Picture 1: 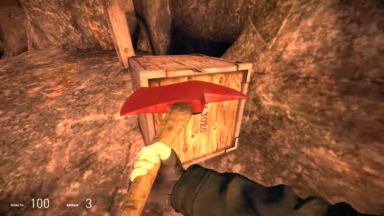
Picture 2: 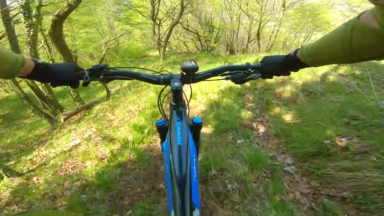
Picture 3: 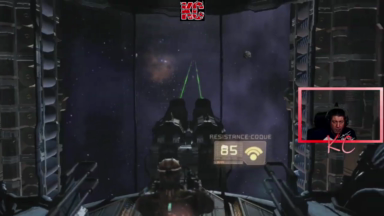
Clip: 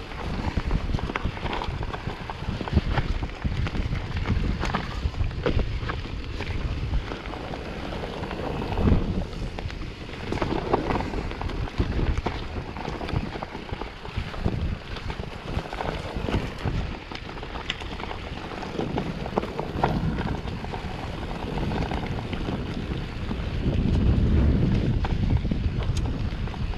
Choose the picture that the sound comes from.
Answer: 2